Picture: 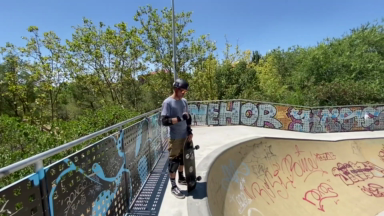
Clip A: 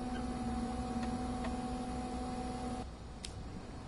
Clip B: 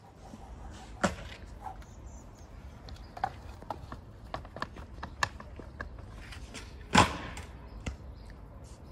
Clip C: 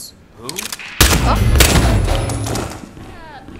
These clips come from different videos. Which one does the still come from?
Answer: B